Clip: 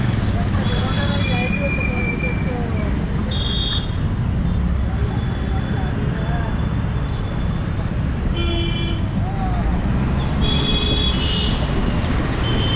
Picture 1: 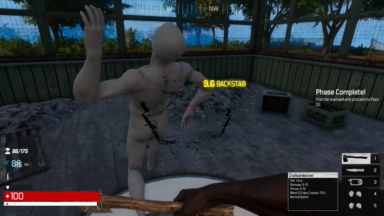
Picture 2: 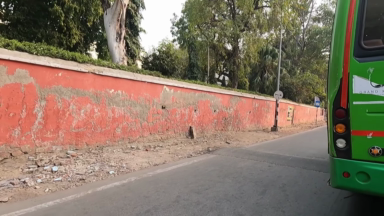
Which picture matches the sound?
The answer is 2